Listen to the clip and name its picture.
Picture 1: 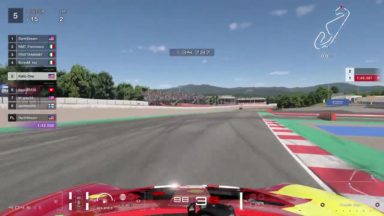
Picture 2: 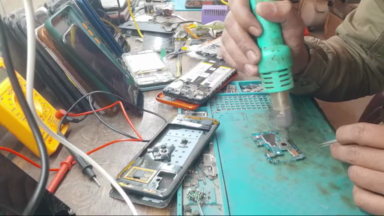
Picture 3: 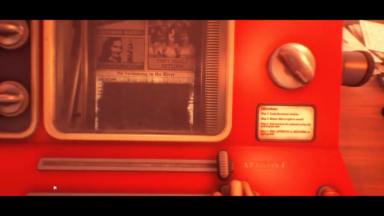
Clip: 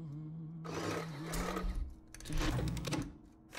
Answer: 3